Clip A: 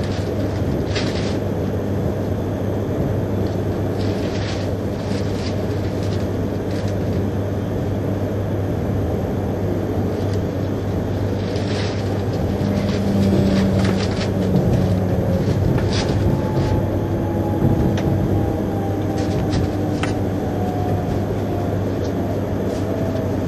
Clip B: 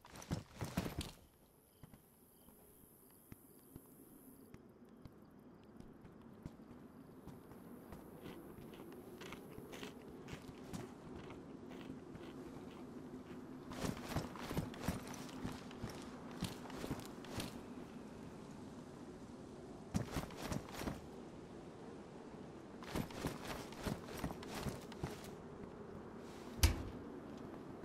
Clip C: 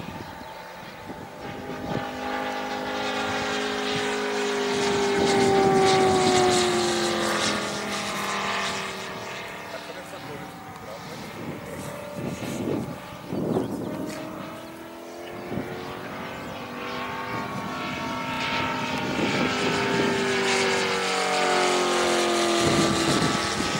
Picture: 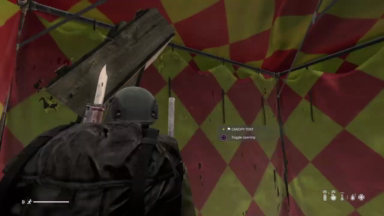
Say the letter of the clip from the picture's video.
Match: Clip B